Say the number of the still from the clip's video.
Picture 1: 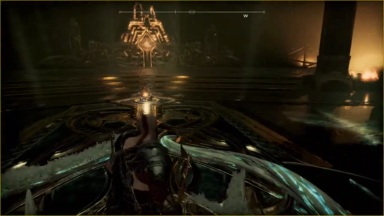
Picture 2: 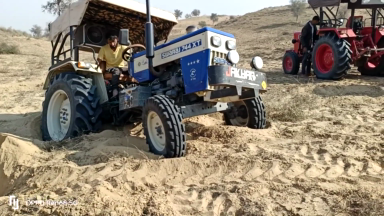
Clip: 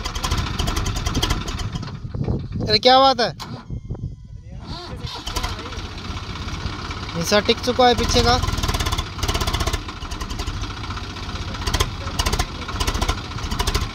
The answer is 2